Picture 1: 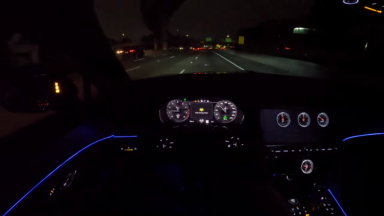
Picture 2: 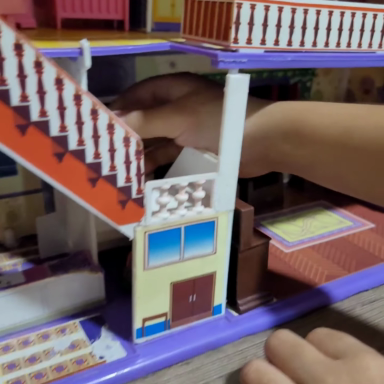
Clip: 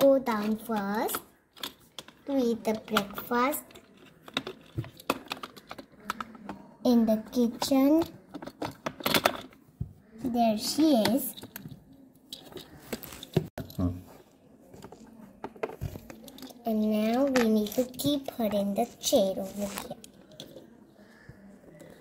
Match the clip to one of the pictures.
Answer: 2